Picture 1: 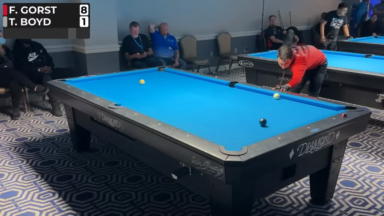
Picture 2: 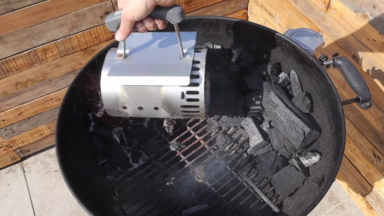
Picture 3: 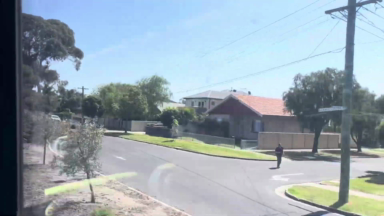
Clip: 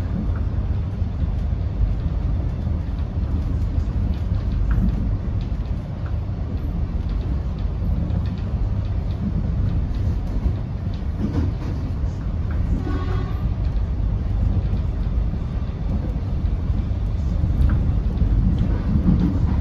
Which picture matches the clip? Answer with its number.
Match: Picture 3